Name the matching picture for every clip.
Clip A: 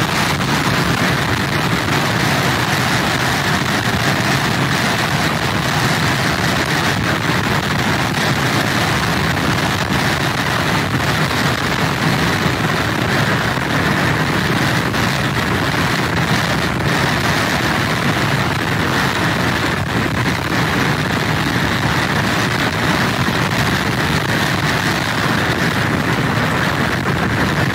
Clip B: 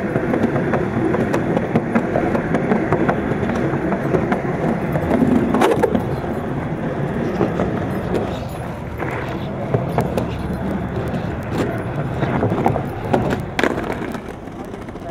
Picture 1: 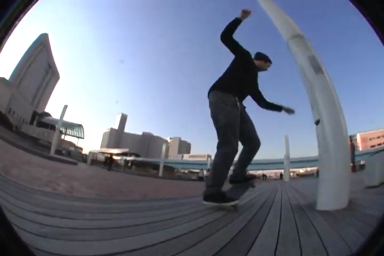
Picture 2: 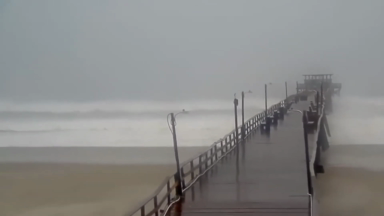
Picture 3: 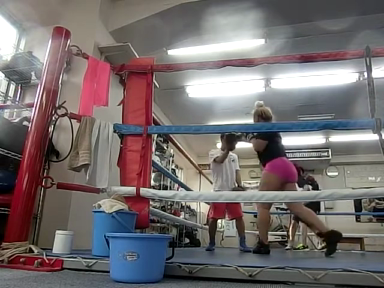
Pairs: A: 2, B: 1